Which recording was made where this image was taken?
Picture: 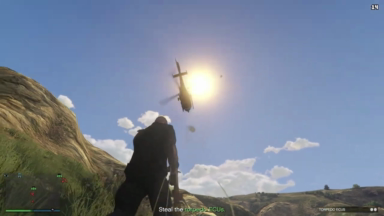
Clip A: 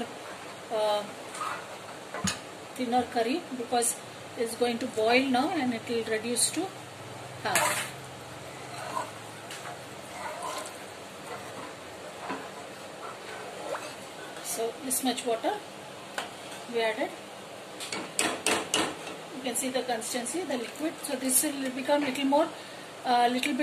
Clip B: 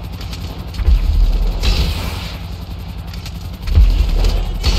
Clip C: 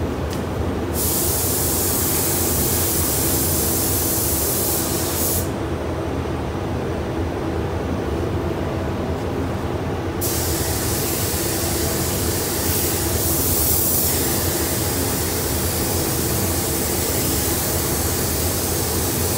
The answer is B